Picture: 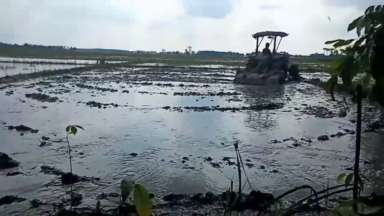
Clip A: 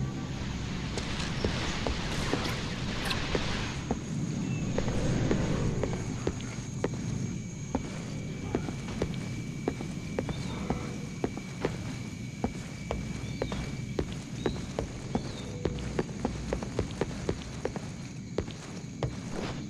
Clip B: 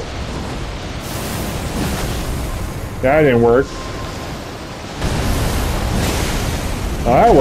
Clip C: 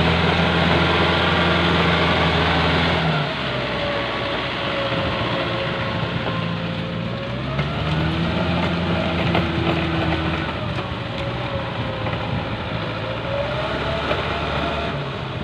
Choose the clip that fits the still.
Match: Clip C